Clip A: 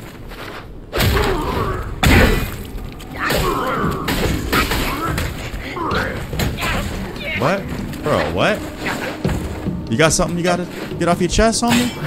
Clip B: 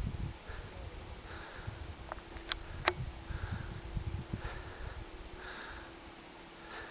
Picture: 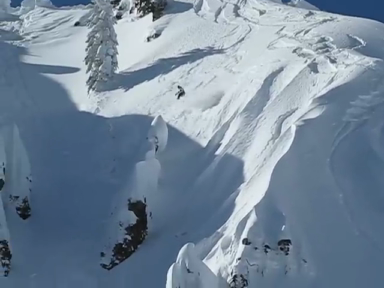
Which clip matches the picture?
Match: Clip B